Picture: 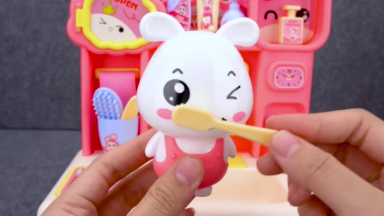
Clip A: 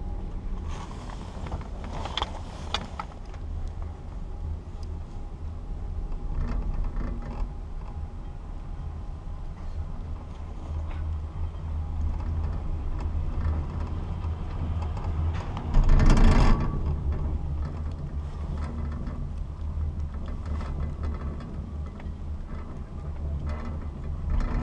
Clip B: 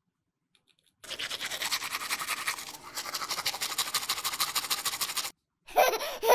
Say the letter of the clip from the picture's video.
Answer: B